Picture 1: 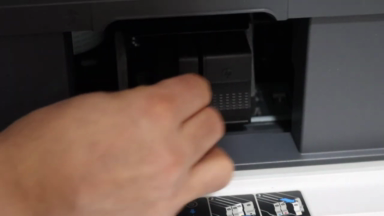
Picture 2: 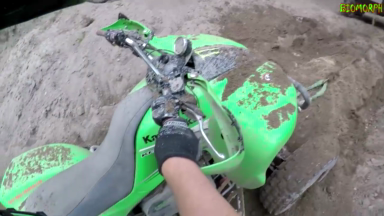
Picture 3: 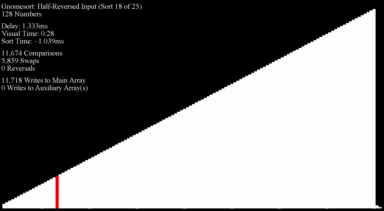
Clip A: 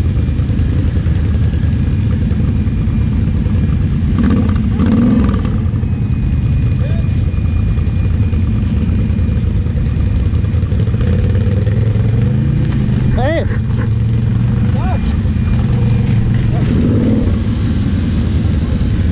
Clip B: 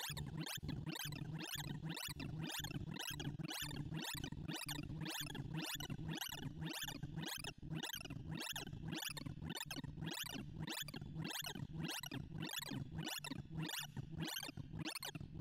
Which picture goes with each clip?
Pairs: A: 2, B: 3